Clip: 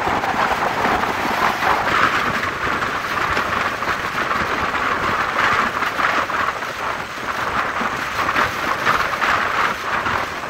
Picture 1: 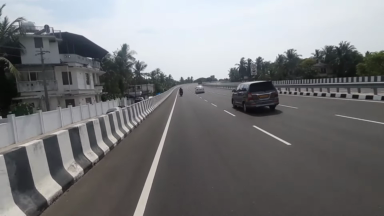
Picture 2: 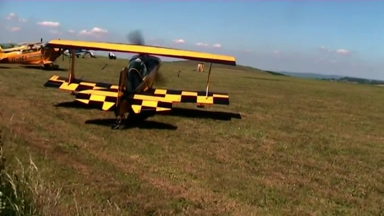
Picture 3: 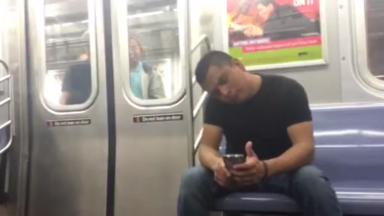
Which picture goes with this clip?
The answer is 1